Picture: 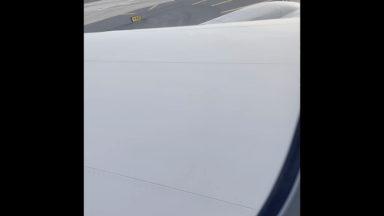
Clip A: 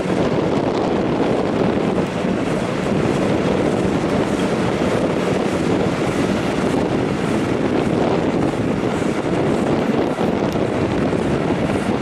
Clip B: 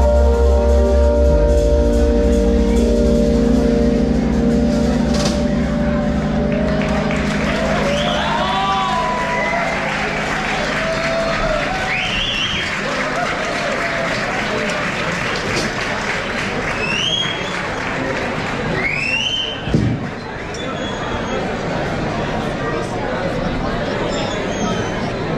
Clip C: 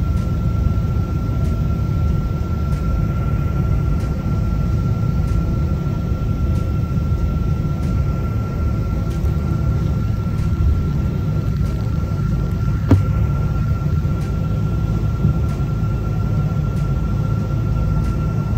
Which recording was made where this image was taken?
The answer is C